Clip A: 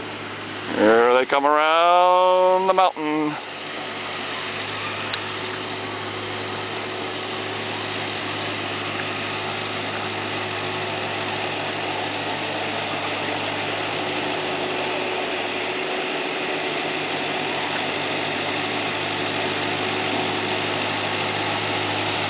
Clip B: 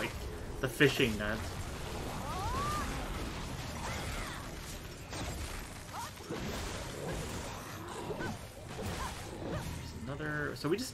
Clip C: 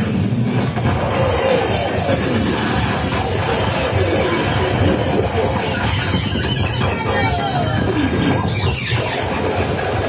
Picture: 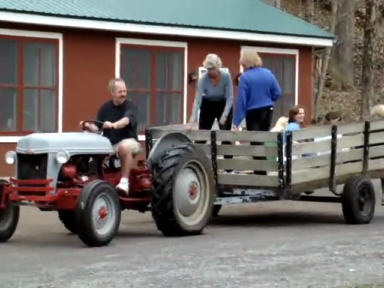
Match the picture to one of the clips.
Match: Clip A